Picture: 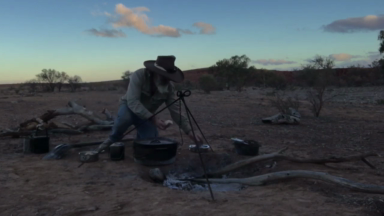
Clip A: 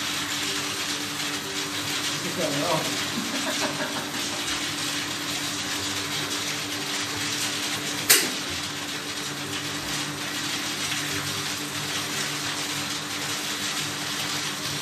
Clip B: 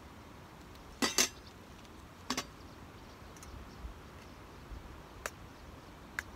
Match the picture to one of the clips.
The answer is B